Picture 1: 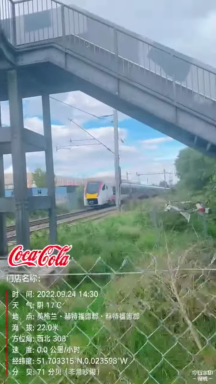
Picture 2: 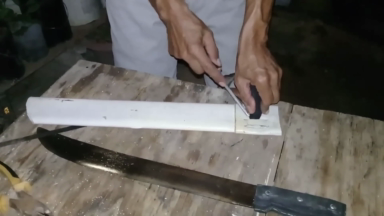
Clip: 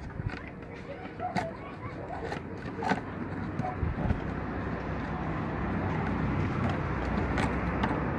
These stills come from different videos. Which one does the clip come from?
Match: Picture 2